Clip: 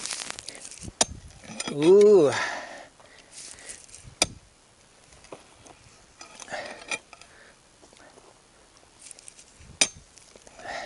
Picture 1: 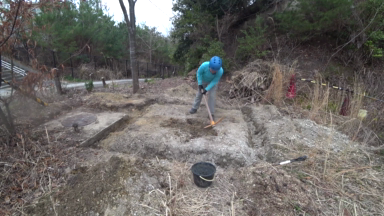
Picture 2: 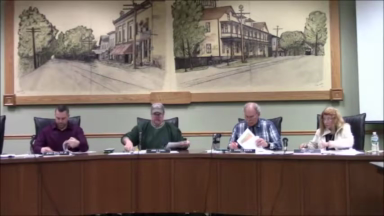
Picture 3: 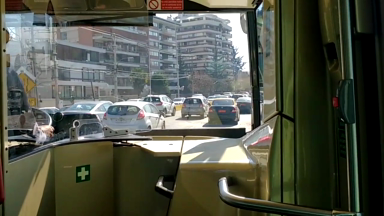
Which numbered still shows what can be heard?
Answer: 1